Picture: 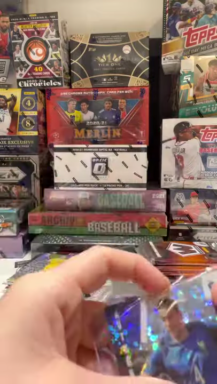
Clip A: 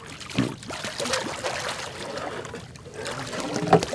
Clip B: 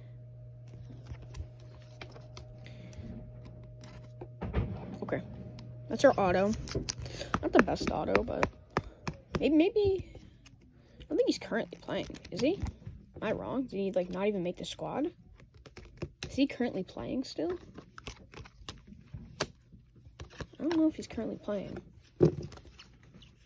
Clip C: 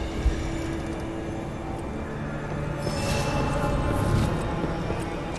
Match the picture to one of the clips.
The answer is B